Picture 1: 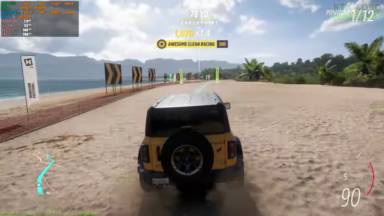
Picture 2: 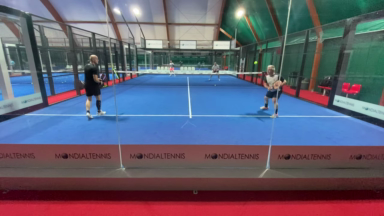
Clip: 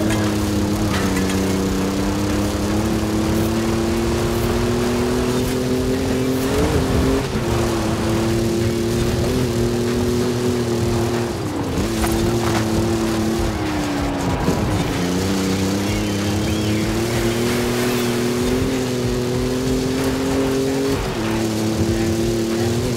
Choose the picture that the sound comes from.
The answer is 1